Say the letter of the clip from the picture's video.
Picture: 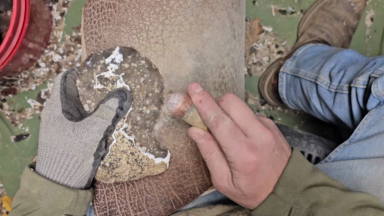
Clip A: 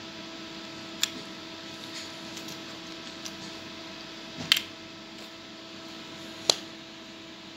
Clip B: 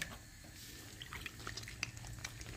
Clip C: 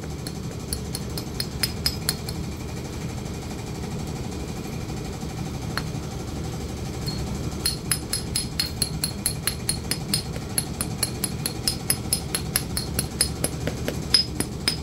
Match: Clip C